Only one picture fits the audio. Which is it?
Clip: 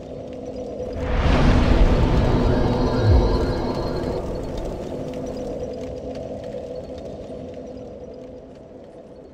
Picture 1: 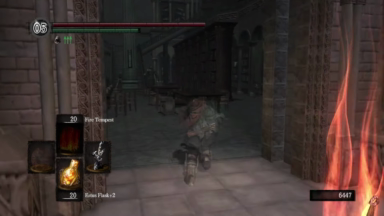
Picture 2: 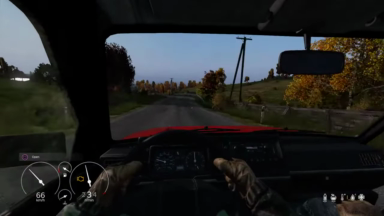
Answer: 1